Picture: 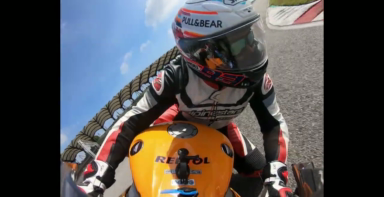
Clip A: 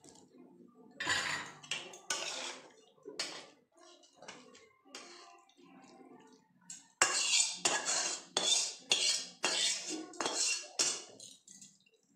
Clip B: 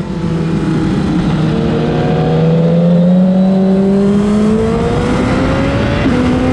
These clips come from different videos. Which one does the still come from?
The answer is B